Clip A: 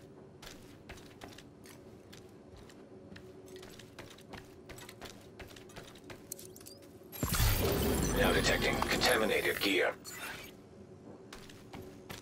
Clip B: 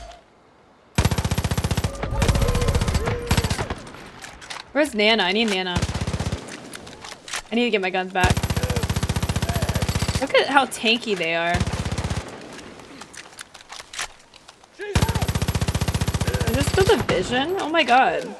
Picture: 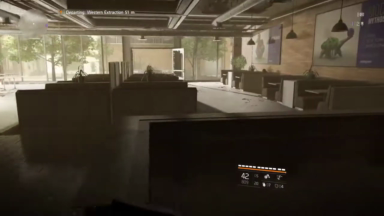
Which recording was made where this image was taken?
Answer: A